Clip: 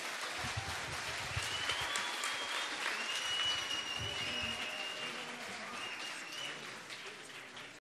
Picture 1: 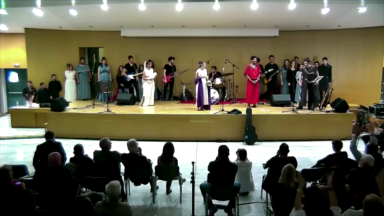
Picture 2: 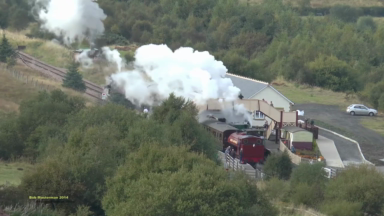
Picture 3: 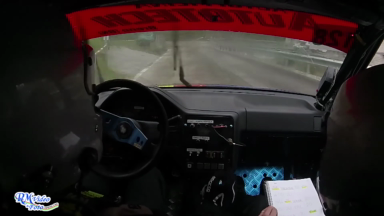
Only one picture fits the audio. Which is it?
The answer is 1